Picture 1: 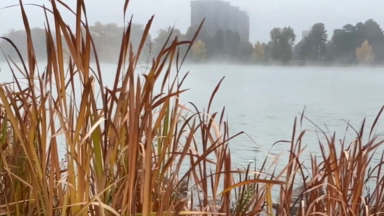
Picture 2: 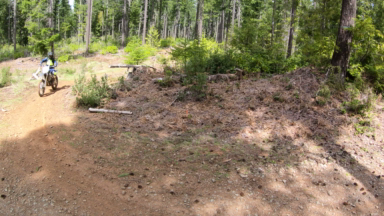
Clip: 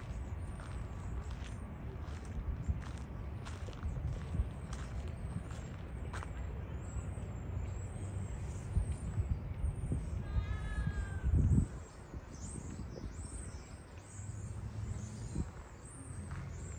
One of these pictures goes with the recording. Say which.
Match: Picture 1